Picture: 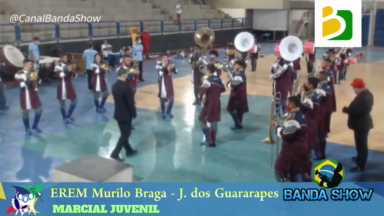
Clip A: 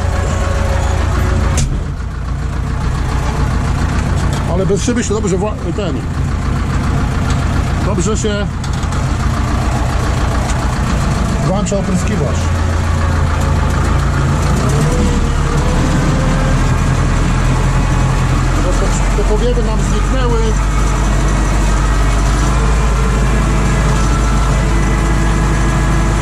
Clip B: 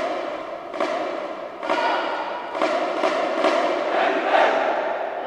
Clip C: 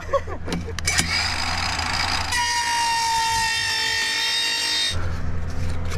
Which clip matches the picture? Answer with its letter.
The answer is B